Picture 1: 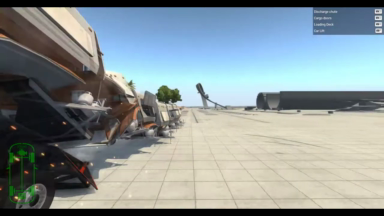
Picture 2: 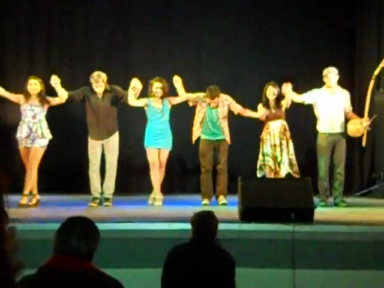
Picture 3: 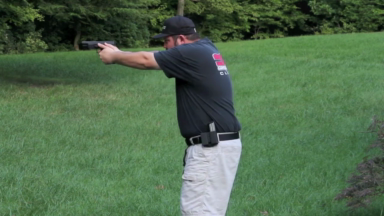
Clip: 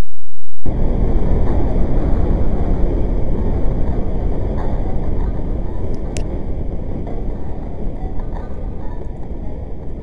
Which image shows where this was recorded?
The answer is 1